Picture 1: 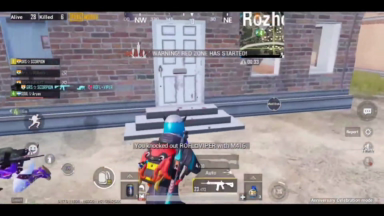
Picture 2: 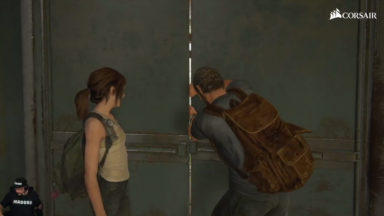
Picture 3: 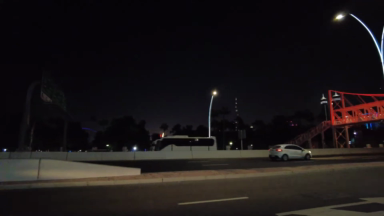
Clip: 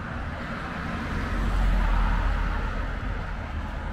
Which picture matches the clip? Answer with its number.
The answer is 3